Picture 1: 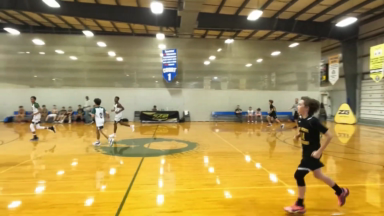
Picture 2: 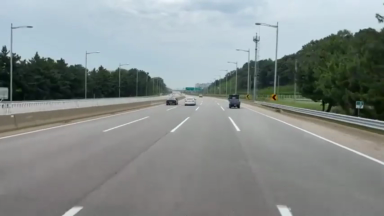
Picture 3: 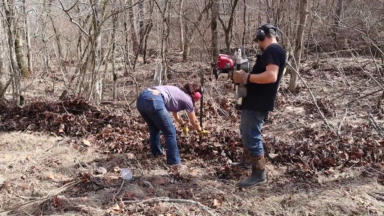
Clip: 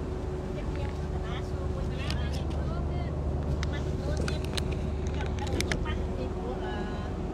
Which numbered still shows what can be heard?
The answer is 2